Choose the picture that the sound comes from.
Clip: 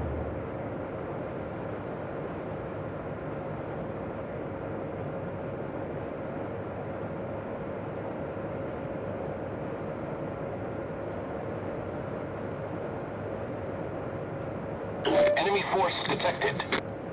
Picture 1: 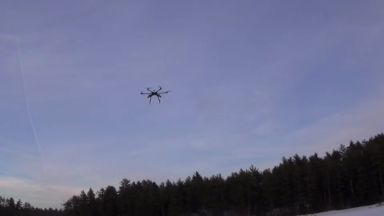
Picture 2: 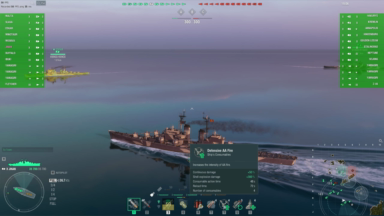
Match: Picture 2